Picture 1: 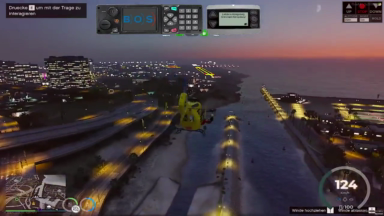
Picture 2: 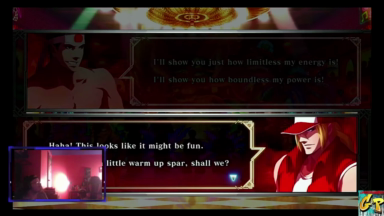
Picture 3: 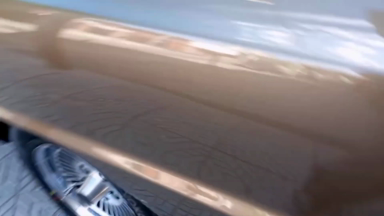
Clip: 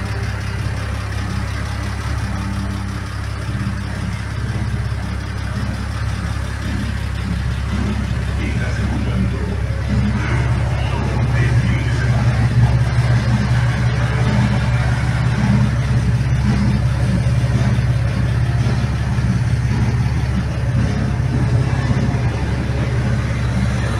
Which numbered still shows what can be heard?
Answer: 3